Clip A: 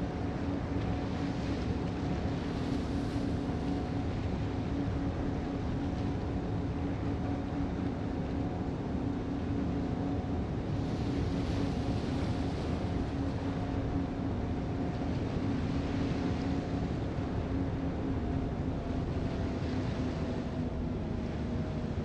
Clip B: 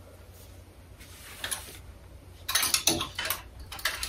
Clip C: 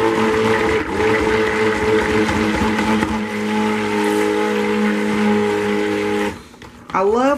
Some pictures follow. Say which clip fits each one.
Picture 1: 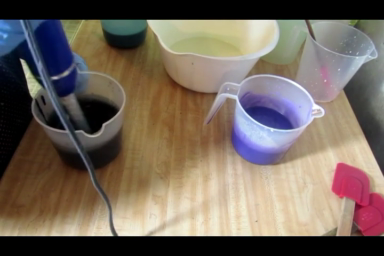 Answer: C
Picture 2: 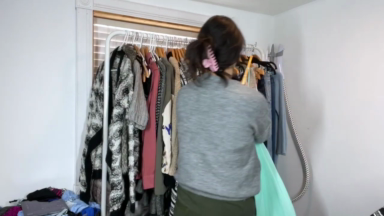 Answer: B